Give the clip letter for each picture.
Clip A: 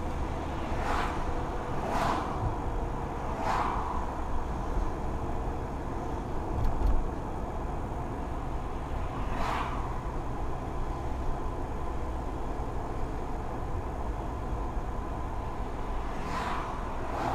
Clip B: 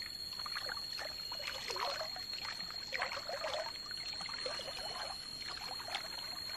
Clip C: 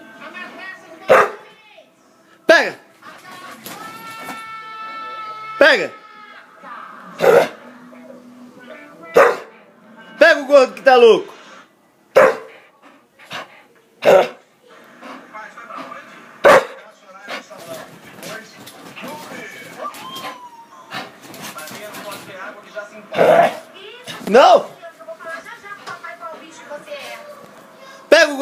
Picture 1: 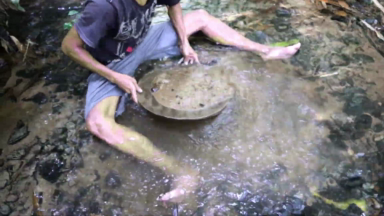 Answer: B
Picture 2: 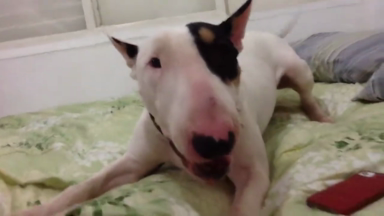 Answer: C